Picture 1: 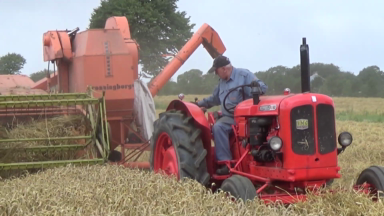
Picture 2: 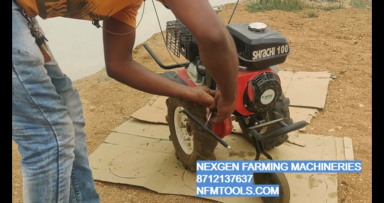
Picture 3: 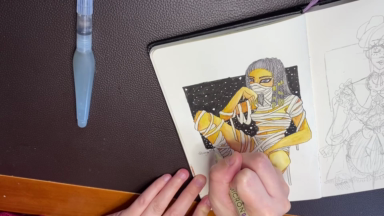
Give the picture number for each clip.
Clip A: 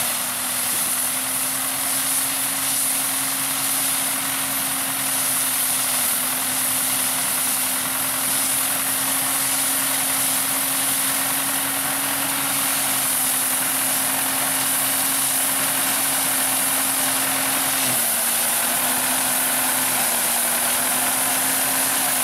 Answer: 1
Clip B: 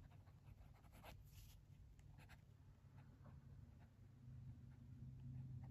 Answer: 3